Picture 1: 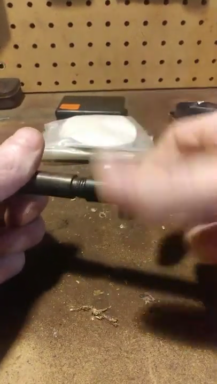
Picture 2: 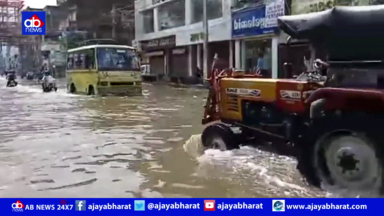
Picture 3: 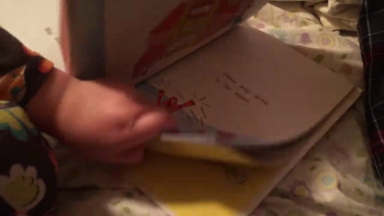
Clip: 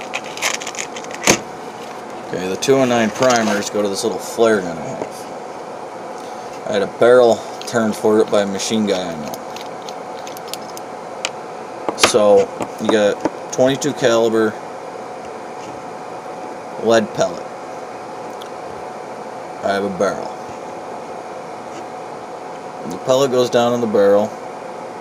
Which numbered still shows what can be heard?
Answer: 1